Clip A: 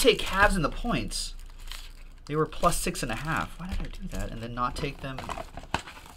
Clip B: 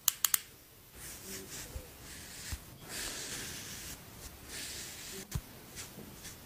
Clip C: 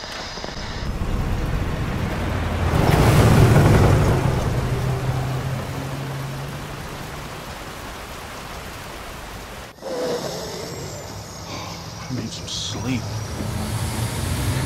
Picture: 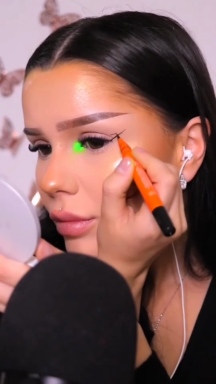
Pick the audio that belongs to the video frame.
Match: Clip B